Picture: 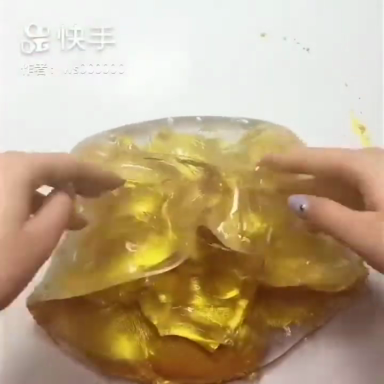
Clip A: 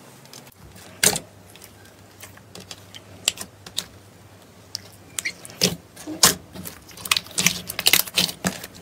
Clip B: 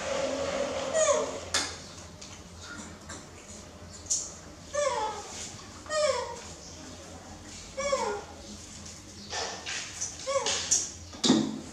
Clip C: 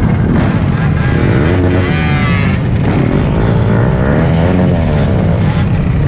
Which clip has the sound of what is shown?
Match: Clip A